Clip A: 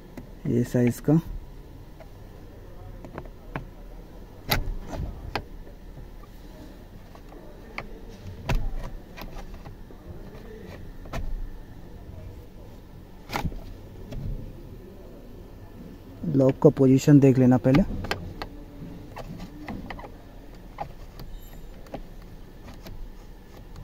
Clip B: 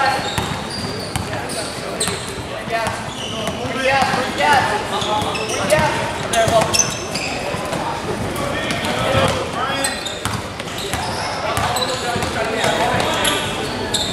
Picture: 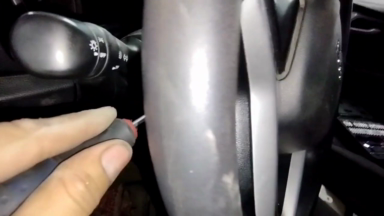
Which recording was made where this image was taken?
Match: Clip A